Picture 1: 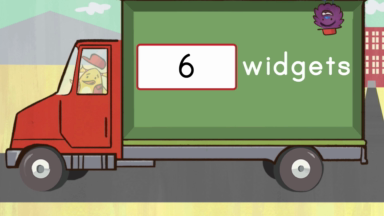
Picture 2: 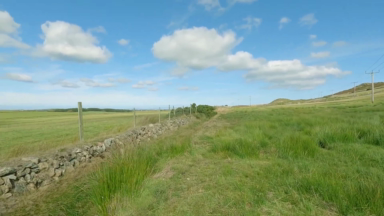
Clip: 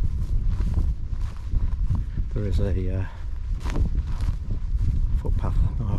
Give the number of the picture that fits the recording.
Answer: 2